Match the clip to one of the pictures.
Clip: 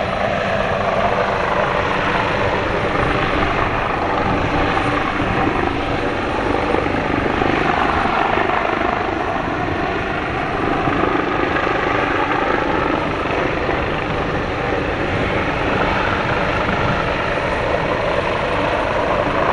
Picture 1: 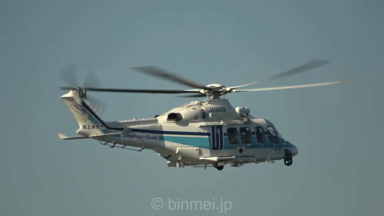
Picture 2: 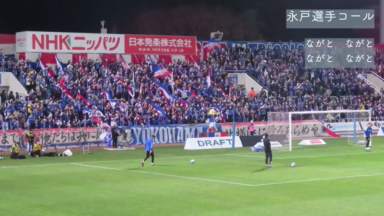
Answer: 1